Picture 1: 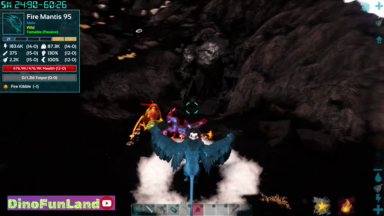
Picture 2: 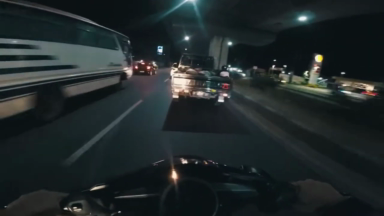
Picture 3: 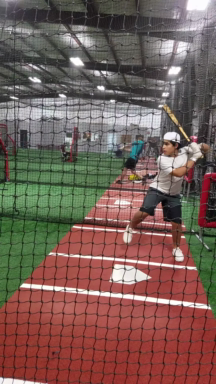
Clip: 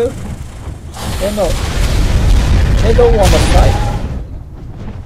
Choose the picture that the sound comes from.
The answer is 1